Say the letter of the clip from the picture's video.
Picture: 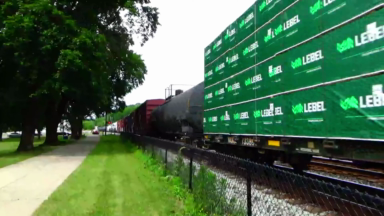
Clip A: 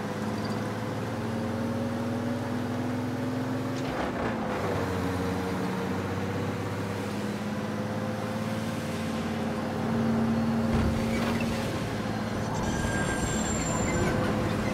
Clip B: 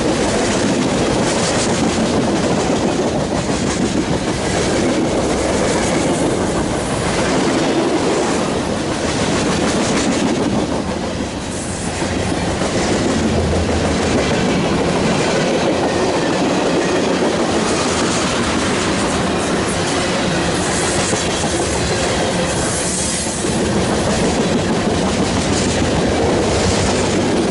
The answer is B